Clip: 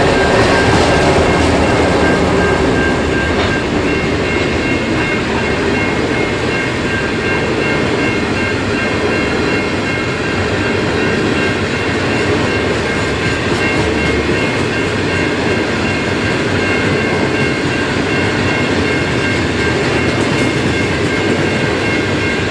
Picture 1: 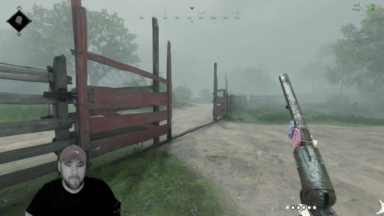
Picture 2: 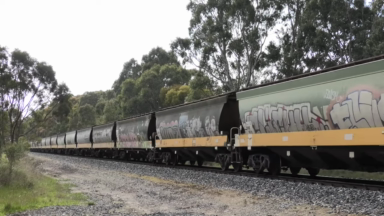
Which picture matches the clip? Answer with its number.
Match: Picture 2